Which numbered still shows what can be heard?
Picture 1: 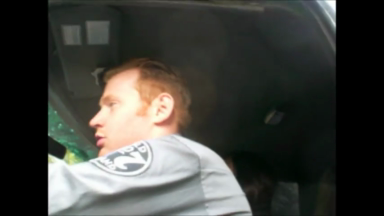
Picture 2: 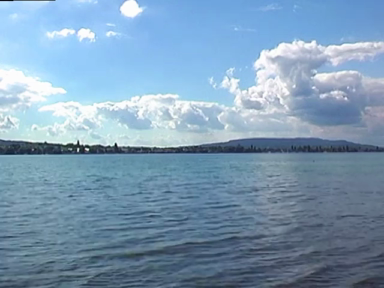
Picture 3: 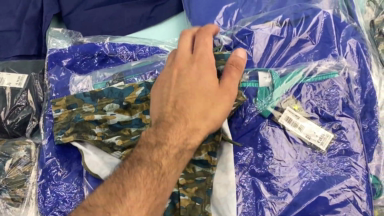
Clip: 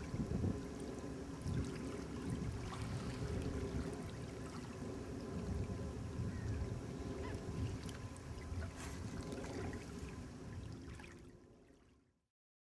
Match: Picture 2